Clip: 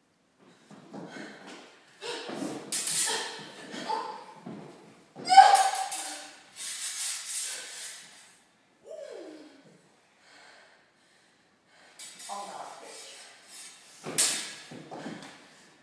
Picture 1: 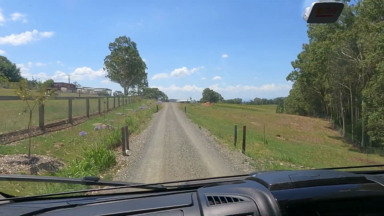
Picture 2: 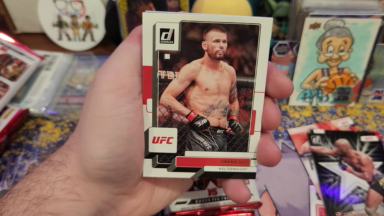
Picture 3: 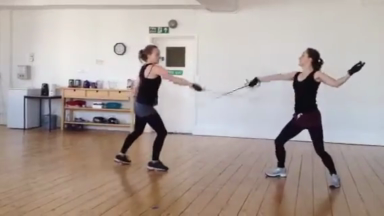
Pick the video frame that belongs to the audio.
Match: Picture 3